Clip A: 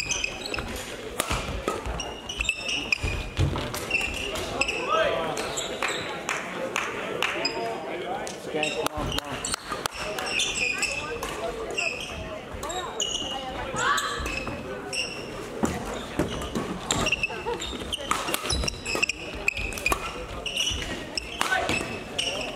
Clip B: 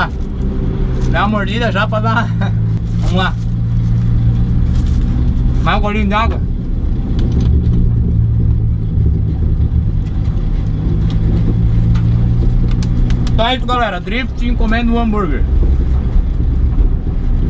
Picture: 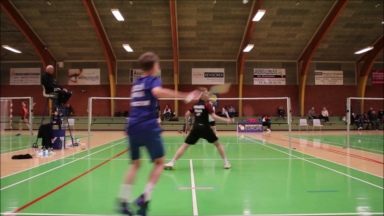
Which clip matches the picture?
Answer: A